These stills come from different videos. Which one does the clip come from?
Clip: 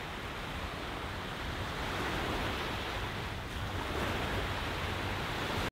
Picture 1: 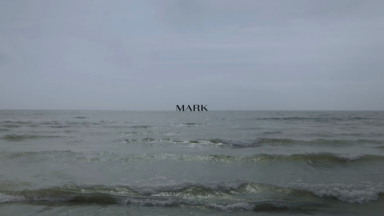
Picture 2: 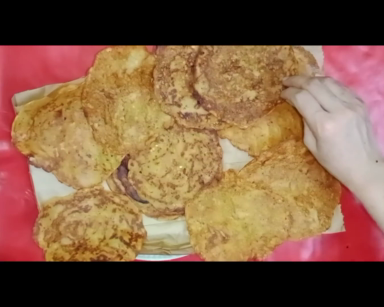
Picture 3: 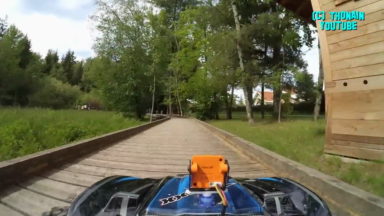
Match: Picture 1